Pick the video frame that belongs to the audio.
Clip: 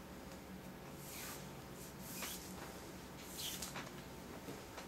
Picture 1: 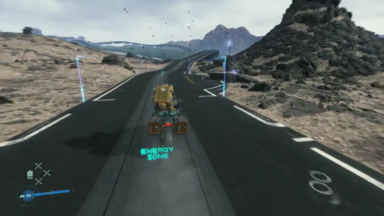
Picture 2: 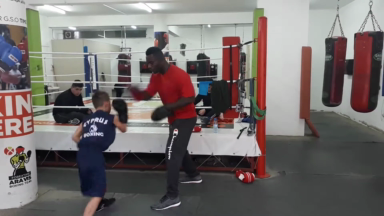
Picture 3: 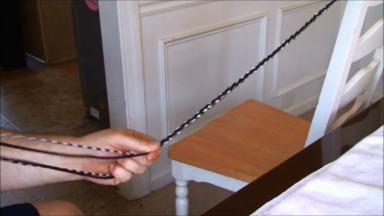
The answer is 3